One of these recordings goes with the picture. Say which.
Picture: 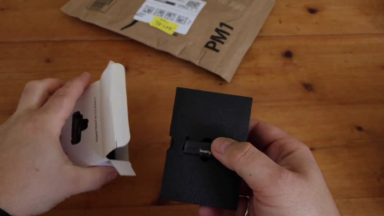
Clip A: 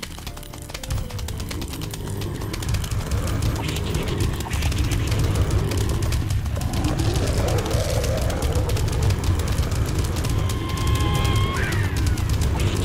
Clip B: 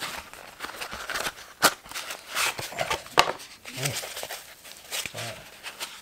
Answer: B